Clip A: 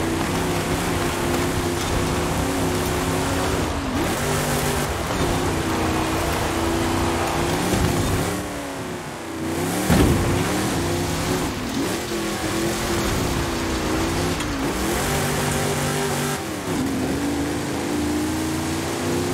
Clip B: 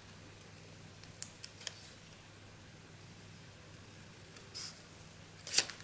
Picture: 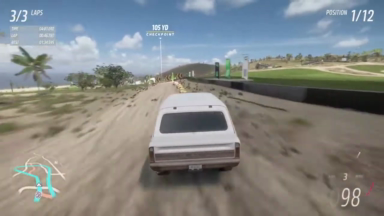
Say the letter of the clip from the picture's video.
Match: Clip A